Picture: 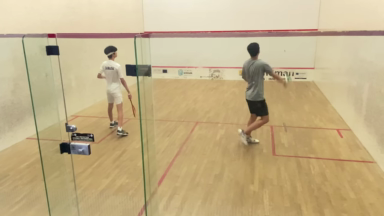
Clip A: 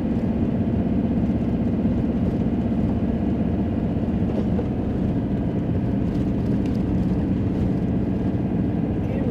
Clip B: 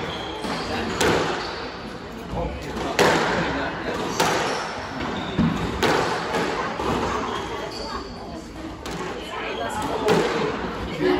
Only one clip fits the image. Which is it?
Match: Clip B